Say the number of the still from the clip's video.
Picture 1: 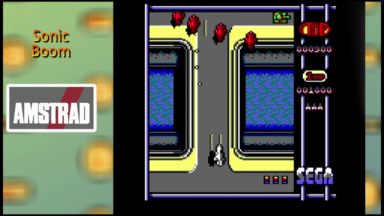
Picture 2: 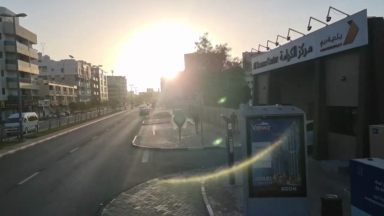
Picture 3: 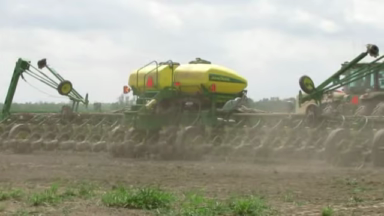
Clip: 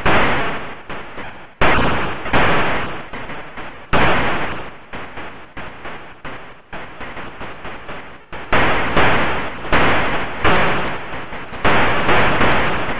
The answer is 1